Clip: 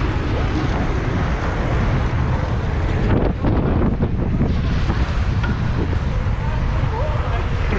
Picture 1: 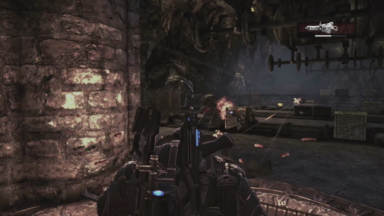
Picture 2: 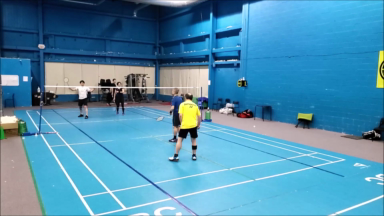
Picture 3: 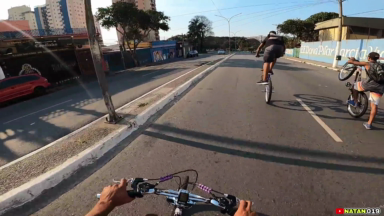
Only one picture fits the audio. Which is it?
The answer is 3